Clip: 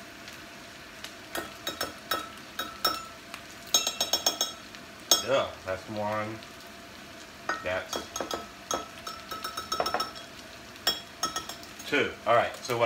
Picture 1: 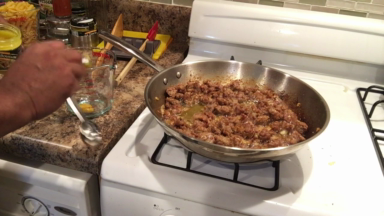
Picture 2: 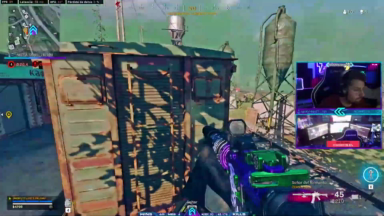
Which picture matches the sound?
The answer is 1